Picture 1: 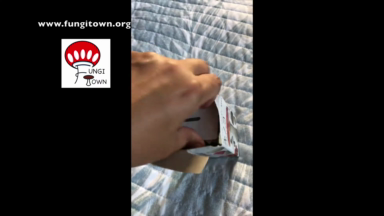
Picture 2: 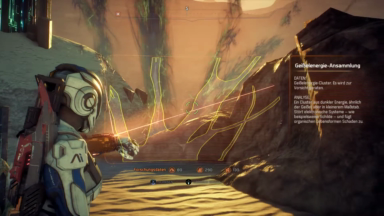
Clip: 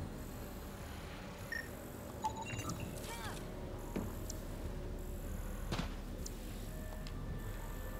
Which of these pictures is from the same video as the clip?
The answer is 2